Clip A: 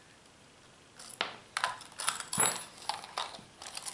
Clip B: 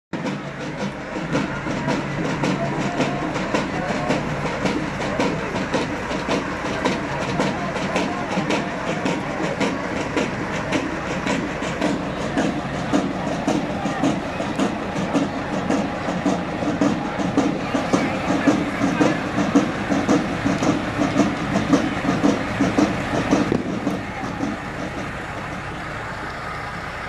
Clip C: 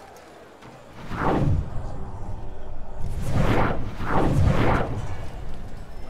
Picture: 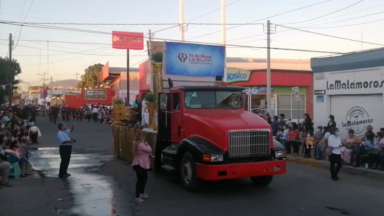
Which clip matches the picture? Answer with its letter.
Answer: B